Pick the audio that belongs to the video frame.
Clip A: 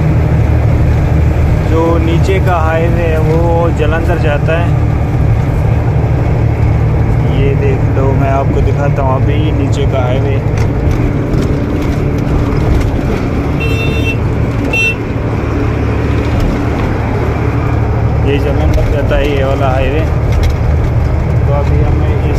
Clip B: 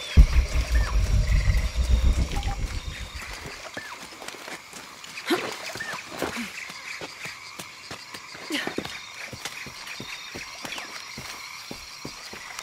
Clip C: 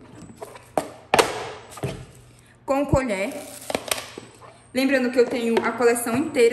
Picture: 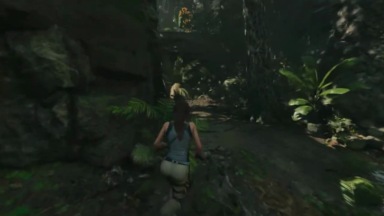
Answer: B